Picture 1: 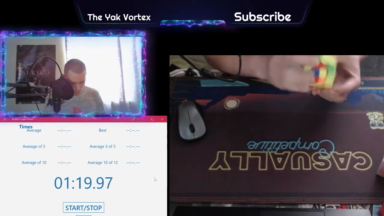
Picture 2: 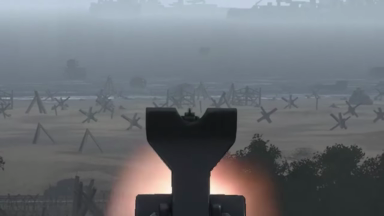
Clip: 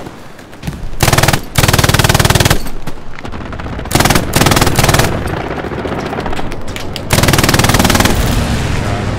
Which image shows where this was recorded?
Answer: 2